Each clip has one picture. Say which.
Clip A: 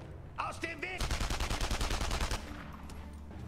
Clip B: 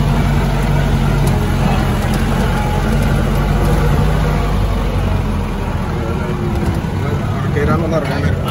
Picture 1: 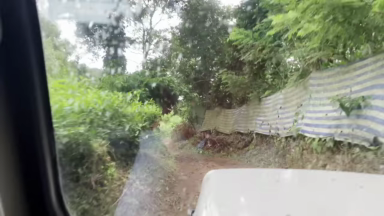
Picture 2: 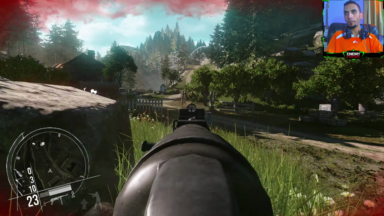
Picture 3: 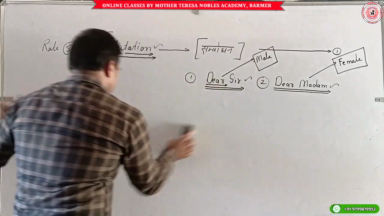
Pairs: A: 2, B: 1